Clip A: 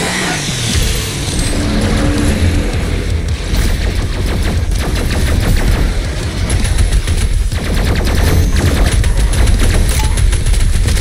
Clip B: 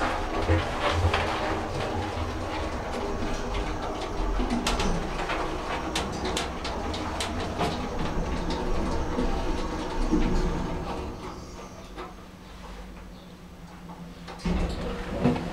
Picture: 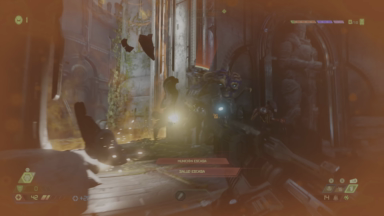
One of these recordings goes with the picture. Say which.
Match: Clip A